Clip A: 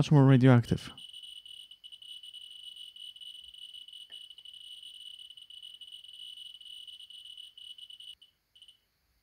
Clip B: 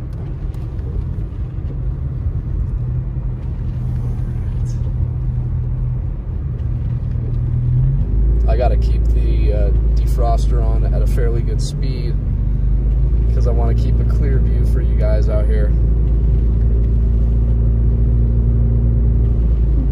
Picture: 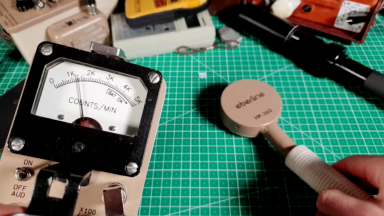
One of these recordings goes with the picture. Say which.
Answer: A